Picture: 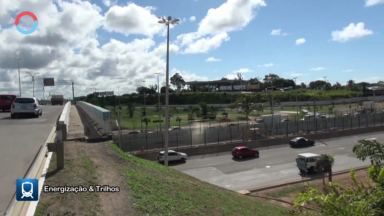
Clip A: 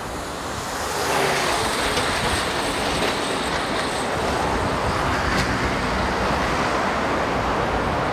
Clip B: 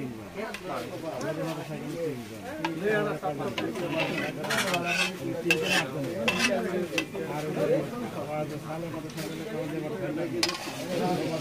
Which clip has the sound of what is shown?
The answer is A